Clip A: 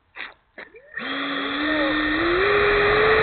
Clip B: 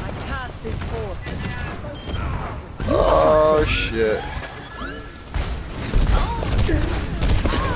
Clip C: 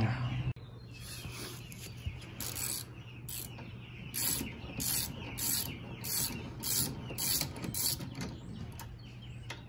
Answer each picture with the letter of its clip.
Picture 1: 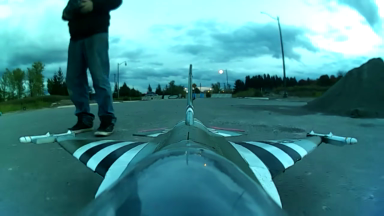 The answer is A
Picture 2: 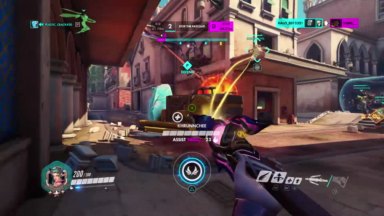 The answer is B